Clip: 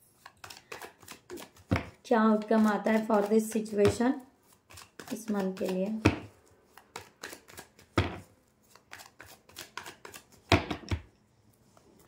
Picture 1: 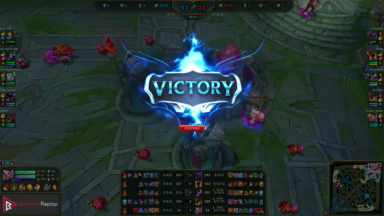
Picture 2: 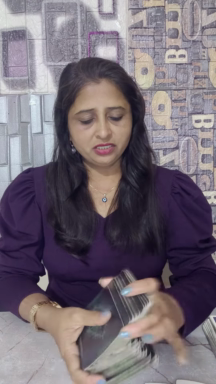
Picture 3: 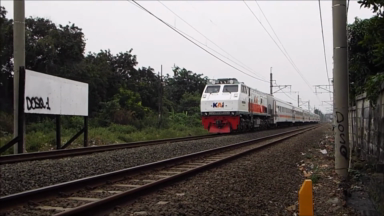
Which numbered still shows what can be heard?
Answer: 2